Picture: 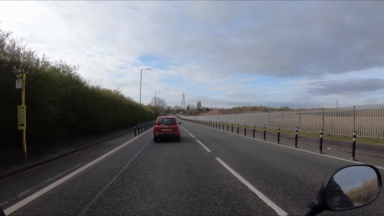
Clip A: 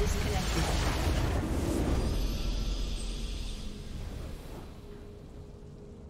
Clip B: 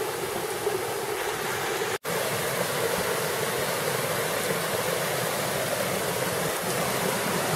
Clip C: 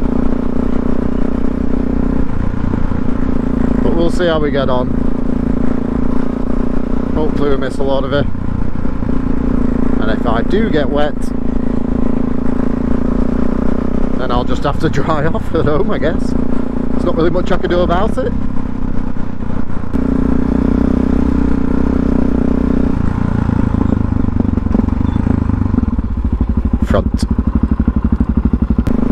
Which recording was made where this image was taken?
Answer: C